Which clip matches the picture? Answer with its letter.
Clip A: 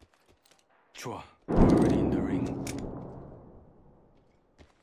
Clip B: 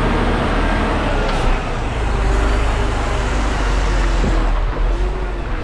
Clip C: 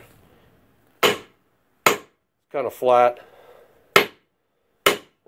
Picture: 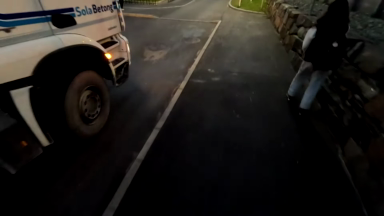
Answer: B